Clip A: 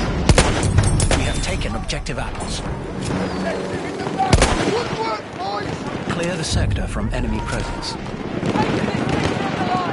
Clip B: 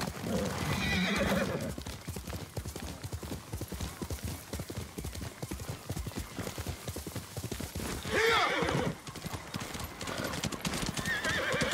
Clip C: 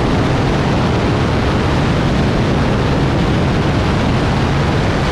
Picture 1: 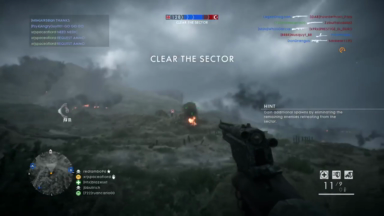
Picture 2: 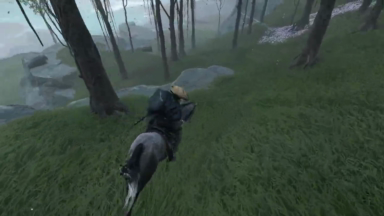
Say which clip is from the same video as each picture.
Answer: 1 A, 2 B